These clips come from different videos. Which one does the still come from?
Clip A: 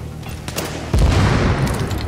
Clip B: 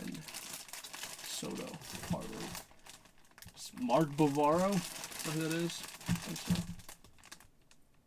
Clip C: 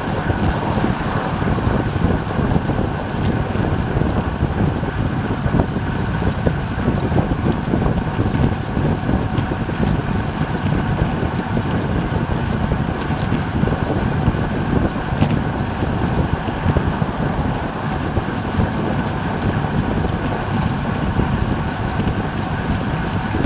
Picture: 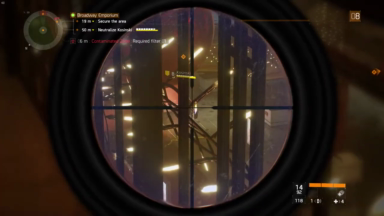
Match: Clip A